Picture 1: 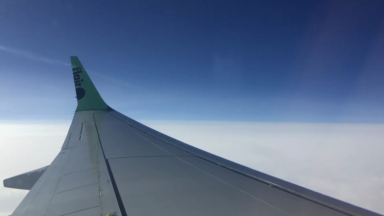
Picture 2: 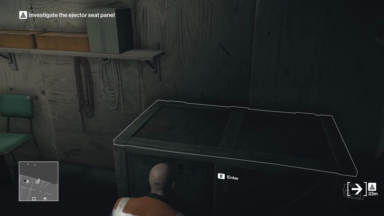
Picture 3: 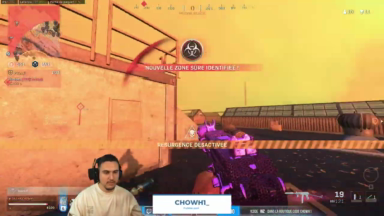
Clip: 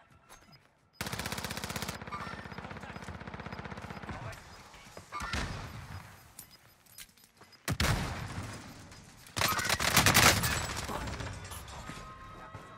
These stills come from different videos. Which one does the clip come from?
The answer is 3